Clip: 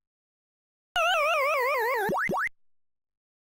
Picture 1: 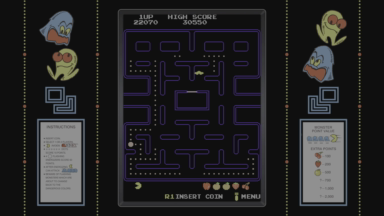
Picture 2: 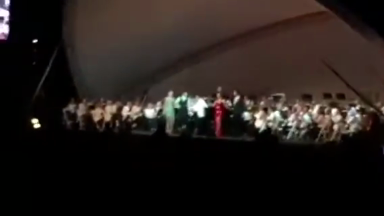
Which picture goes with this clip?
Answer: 1